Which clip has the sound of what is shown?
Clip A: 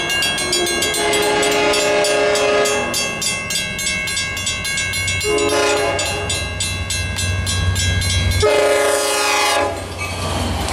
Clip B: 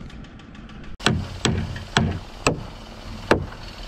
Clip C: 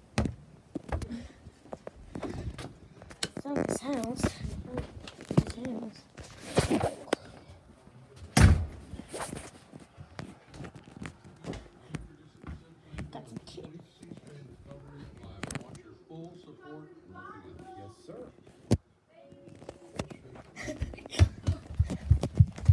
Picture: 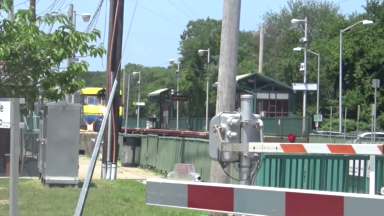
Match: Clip A